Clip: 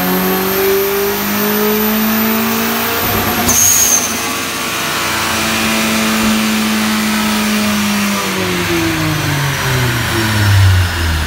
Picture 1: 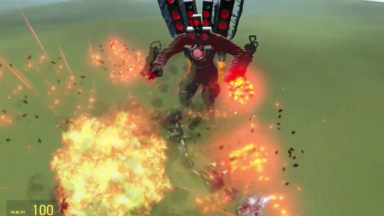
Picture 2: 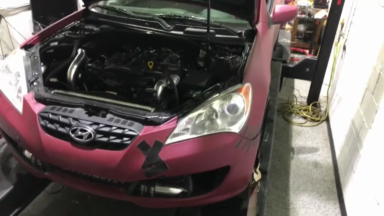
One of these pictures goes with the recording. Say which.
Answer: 2